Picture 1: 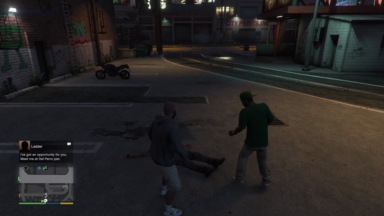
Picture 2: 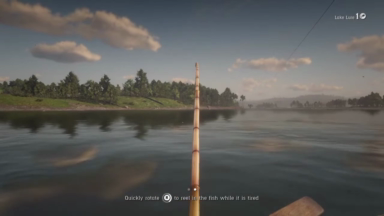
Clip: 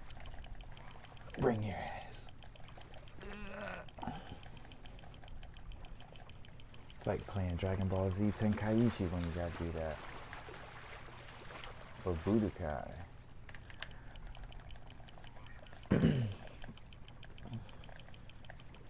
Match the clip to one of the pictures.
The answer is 2